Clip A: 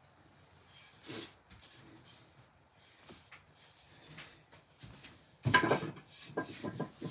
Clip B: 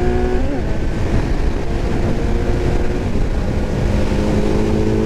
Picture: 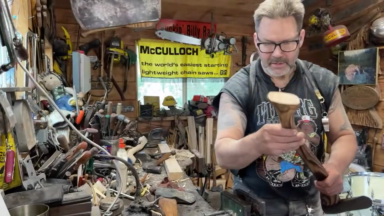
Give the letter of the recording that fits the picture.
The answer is A